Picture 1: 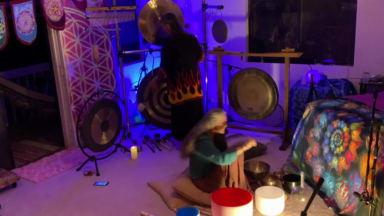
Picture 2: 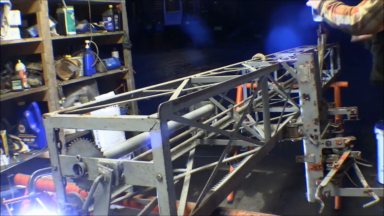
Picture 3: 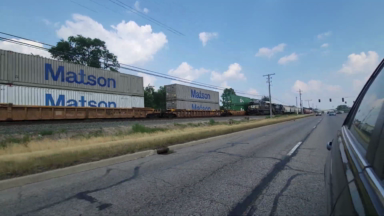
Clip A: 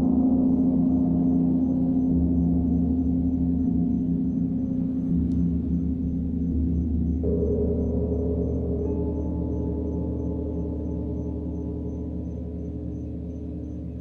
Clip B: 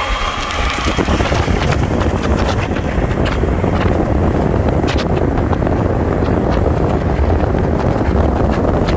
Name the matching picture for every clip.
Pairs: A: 1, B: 3